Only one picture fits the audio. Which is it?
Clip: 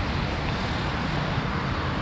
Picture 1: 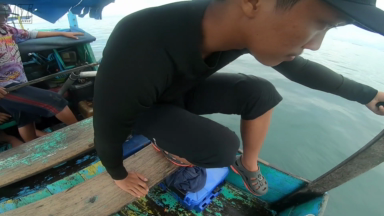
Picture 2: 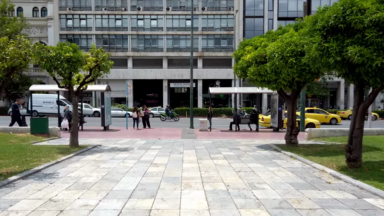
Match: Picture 2